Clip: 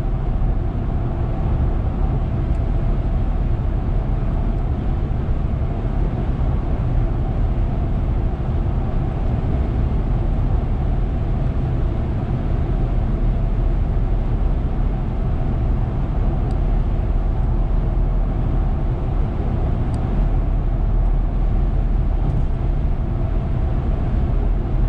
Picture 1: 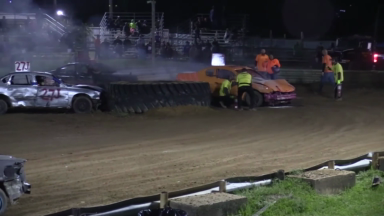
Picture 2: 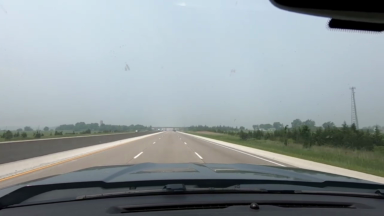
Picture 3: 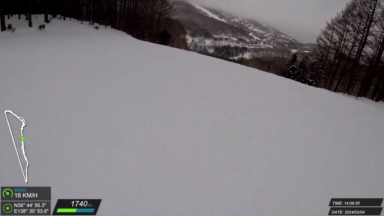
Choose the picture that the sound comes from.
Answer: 2